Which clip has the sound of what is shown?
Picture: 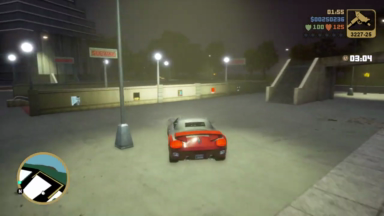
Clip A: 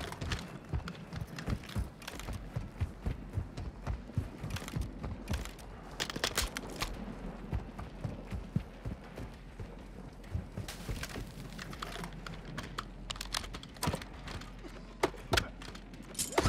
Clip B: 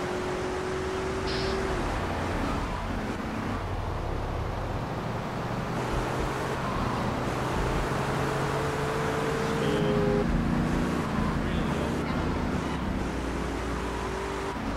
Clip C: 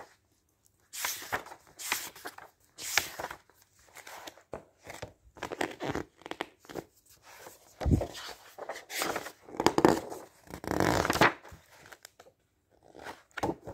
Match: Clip B